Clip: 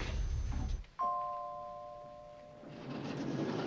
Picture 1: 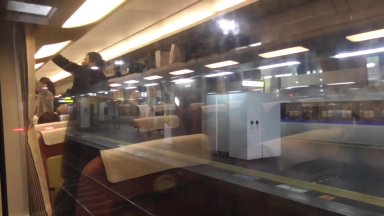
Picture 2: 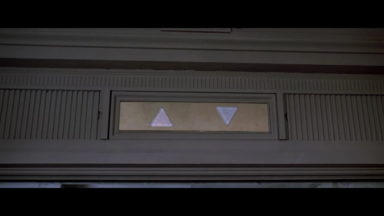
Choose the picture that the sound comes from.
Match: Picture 2